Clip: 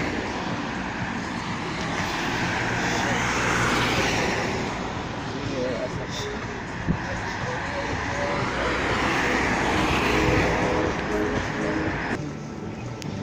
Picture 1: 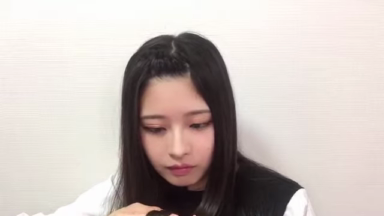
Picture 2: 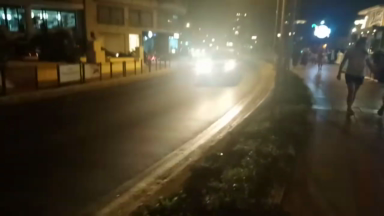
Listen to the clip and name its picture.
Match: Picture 2